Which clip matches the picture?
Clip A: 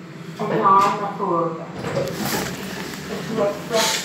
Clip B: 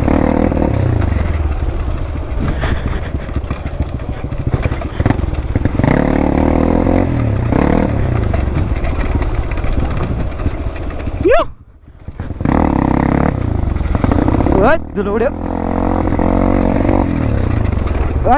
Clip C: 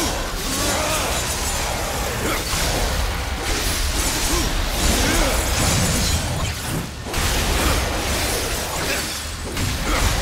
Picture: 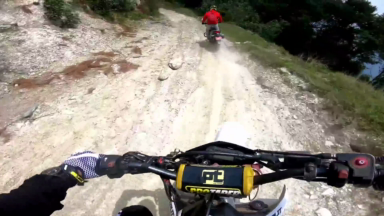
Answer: B